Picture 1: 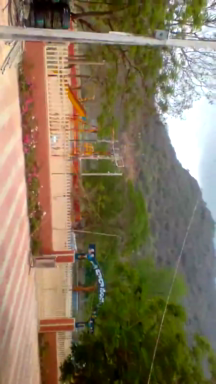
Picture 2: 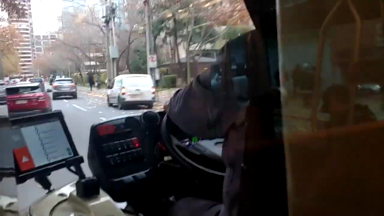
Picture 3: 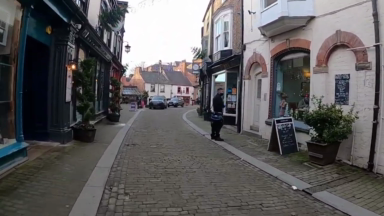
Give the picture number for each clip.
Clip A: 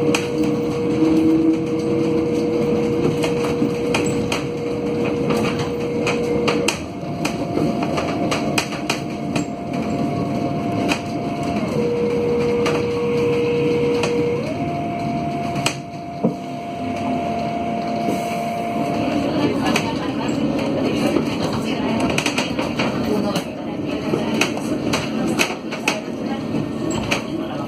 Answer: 2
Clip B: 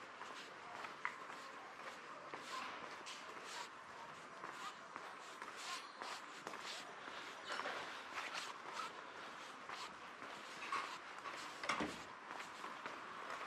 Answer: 3